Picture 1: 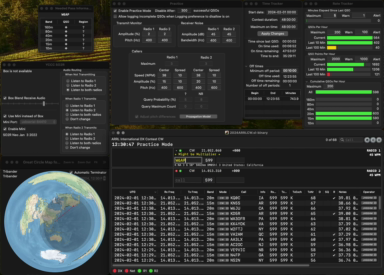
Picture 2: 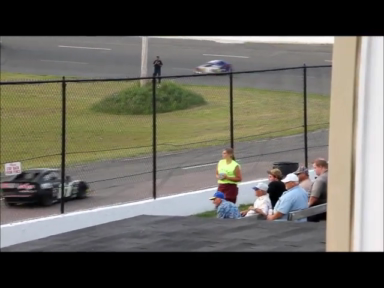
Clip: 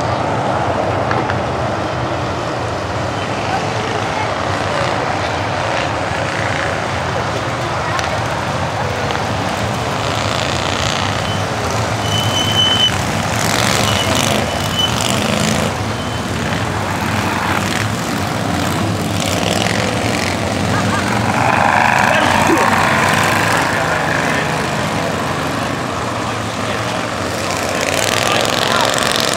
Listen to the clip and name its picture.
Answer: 2